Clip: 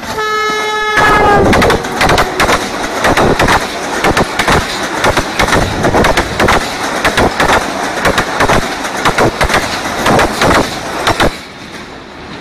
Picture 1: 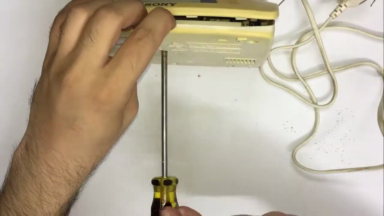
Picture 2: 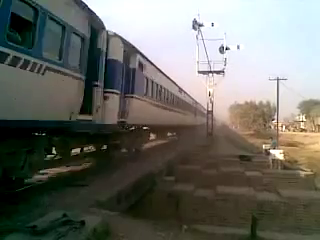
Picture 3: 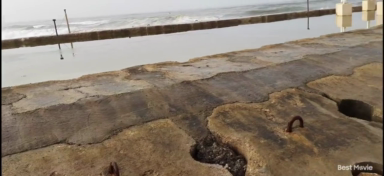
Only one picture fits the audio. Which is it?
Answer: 2